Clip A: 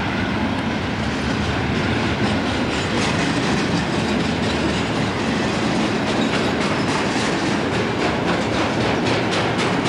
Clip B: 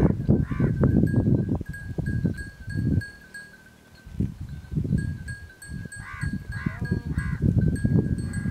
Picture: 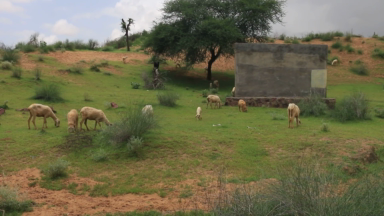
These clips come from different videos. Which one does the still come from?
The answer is B